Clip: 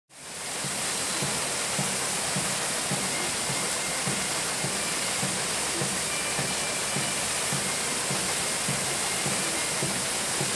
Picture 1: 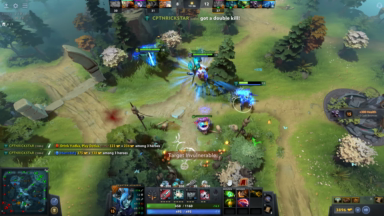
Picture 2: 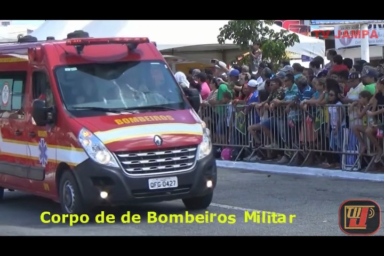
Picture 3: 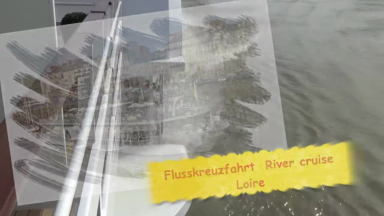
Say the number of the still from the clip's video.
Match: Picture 3